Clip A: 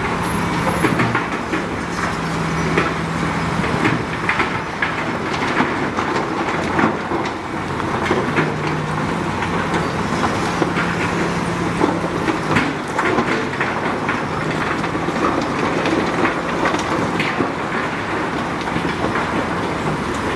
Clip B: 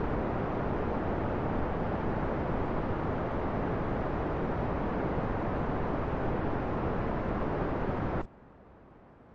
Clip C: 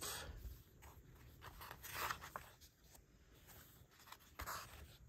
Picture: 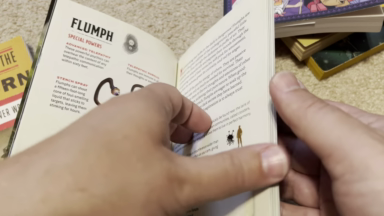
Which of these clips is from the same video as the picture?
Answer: C